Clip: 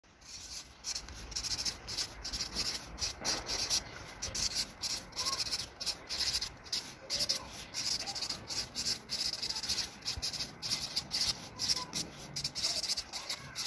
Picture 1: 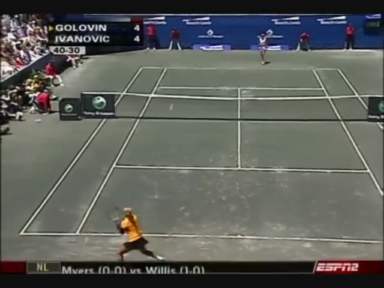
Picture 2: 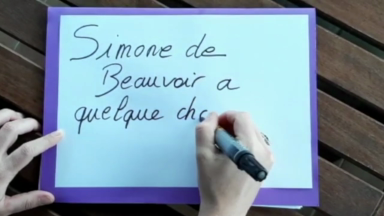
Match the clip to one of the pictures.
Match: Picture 2